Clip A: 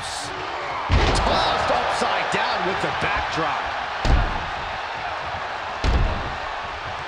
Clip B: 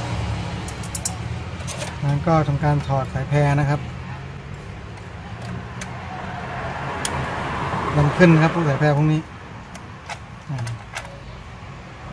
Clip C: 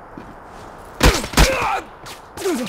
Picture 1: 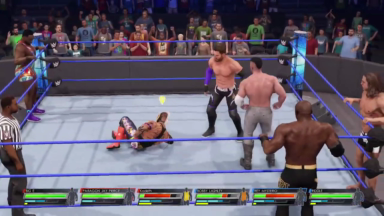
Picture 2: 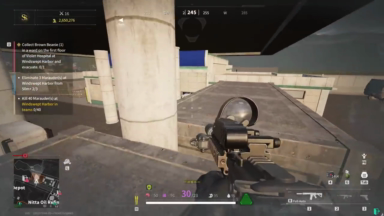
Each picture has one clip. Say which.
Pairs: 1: A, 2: C